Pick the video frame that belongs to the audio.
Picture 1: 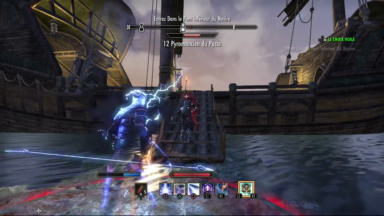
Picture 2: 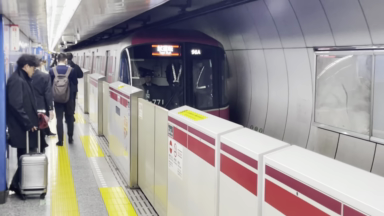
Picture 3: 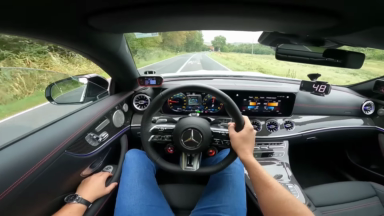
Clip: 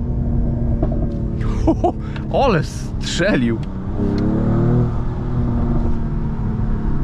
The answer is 3